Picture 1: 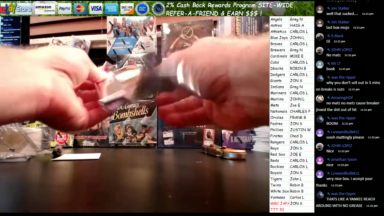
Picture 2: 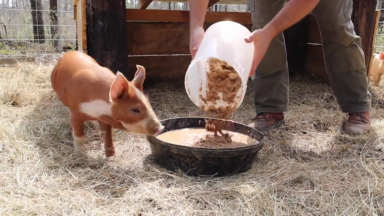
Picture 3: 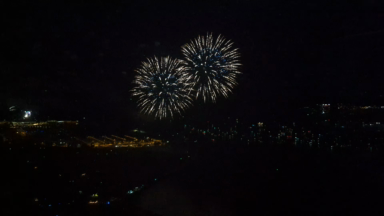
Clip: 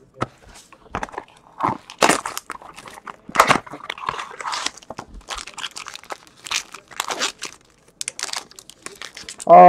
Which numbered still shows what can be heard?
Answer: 1